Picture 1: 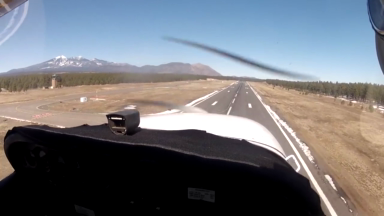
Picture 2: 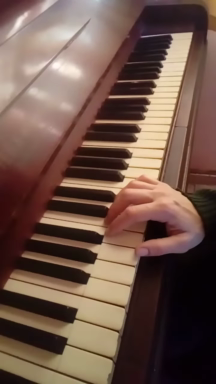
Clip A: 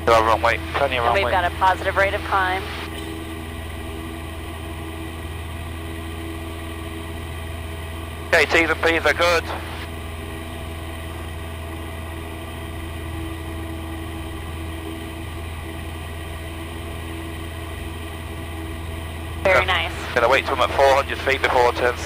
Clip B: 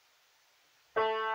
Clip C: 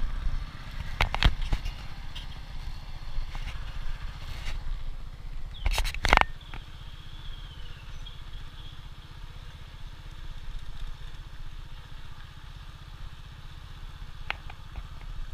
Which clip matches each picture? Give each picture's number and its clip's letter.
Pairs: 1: A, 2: B